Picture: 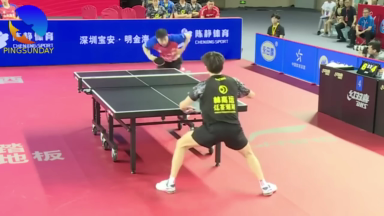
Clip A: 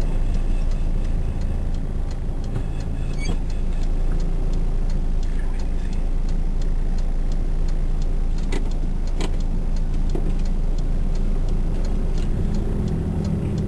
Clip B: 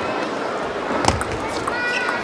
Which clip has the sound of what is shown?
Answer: B